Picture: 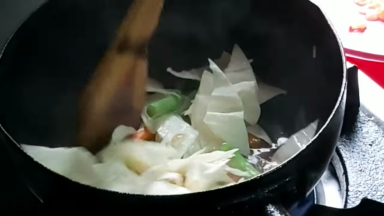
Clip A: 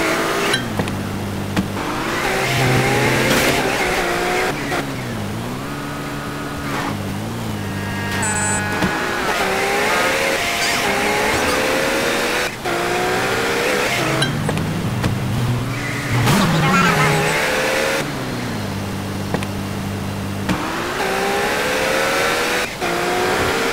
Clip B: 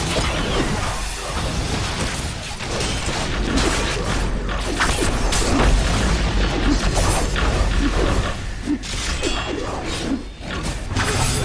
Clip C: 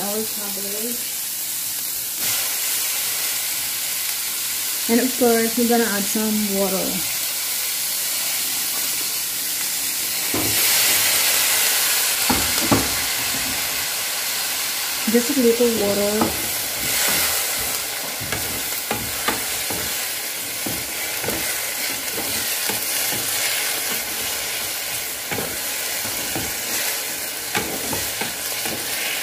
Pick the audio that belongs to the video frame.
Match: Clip C